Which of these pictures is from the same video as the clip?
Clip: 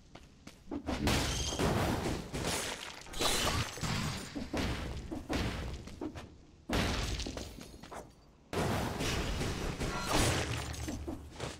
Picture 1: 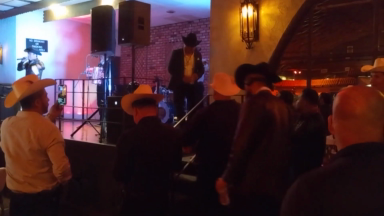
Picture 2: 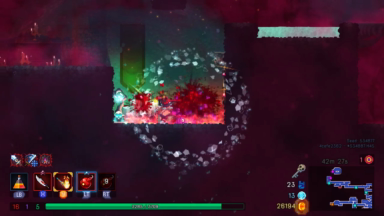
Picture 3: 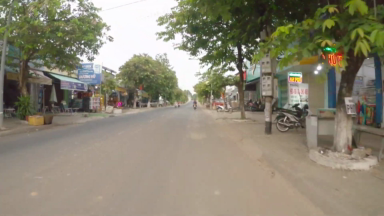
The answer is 2